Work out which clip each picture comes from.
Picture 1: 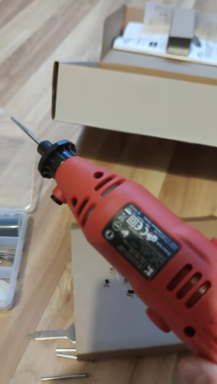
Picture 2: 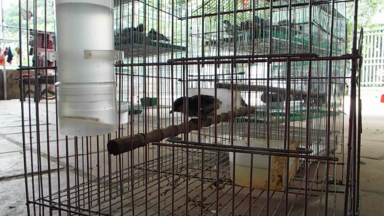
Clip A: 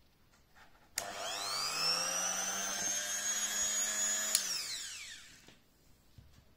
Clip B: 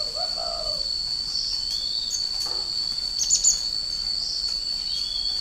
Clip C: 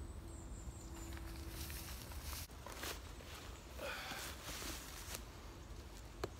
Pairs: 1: A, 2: B